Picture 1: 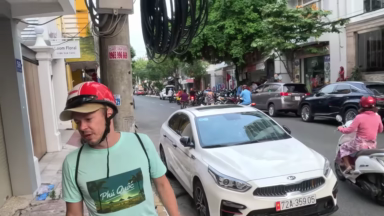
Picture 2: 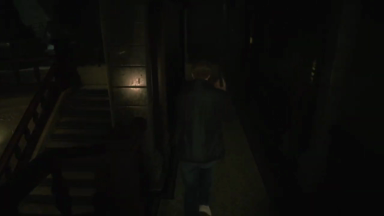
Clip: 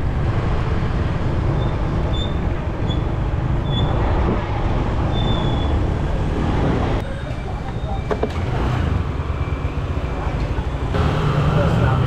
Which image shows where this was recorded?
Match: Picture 1